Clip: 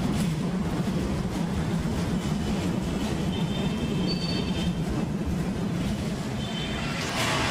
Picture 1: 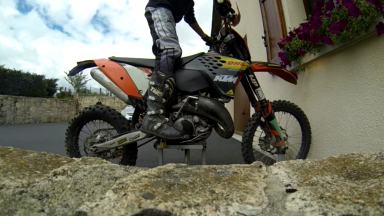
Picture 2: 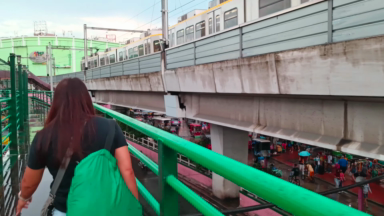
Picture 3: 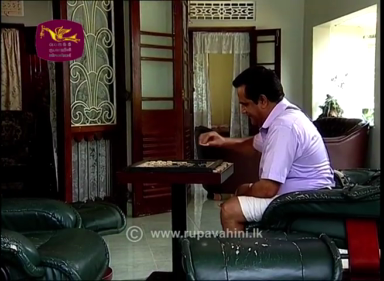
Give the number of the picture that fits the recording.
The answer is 2